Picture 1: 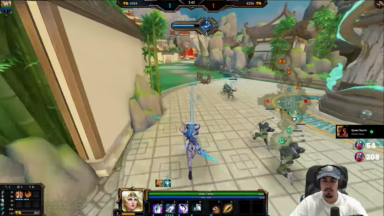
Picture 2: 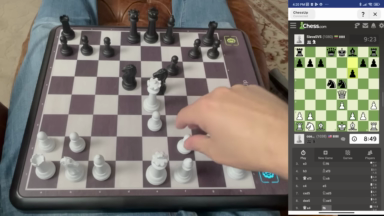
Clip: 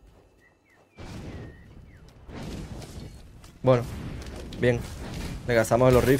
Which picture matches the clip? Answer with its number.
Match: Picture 1